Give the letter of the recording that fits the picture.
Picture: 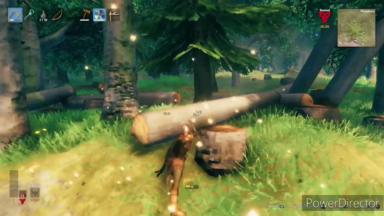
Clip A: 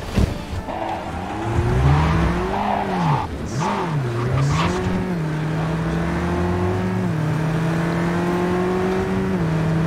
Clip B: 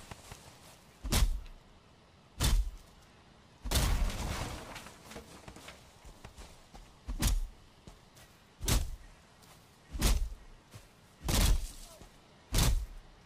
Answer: B